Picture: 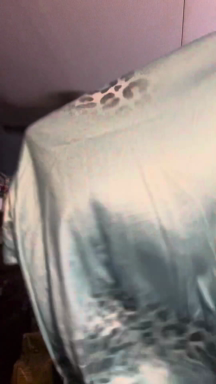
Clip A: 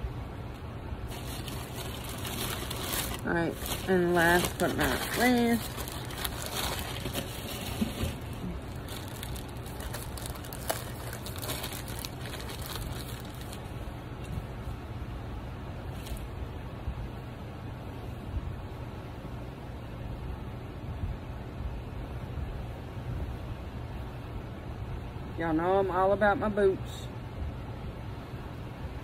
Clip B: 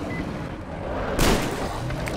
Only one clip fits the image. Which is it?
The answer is A